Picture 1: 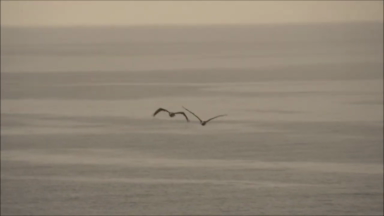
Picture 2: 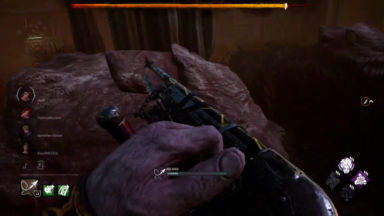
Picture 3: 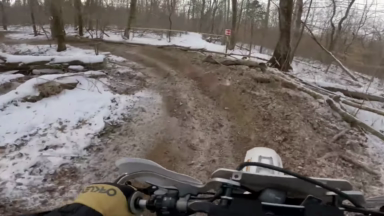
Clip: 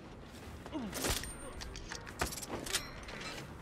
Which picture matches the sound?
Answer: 2